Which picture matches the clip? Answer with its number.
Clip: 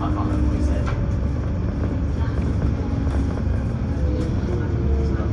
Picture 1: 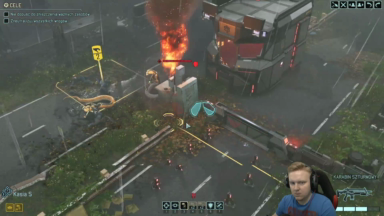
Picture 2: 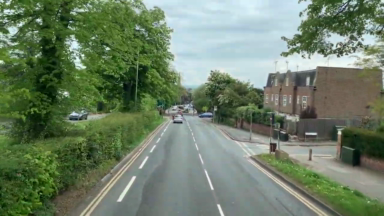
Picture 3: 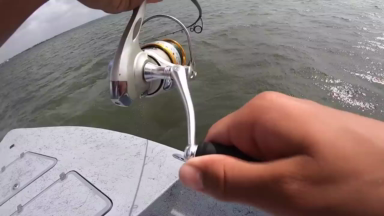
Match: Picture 2